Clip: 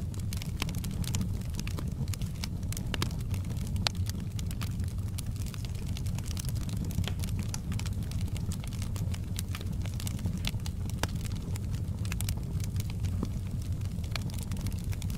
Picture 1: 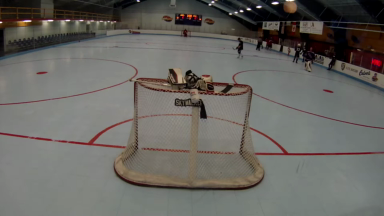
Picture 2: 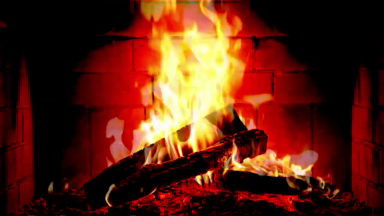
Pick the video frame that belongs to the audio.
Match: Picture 2